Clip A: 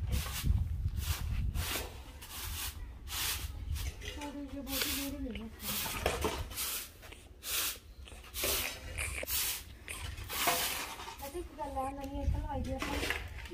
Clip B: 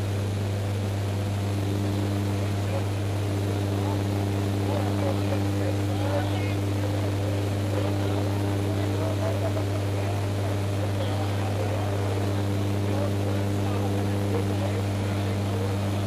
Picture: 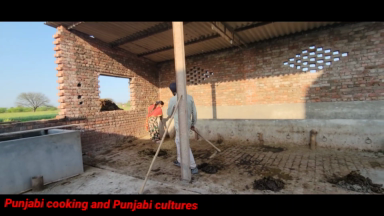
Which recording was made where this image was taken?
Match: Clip A